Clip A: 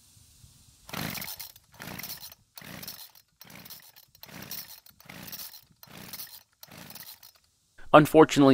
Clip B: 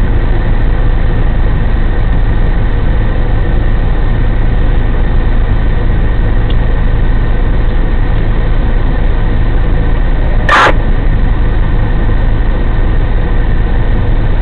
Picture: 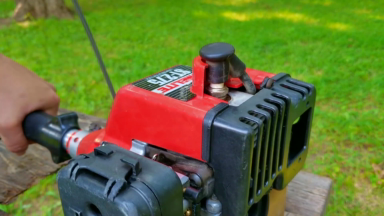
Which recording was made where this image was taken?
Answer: A